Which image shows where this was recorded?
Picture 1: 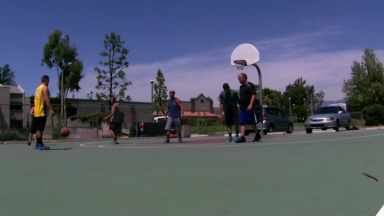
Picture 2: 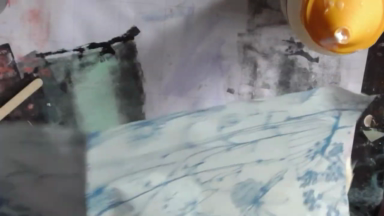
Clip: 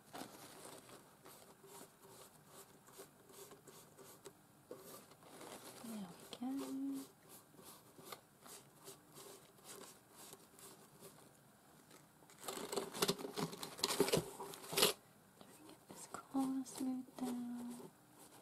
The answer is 2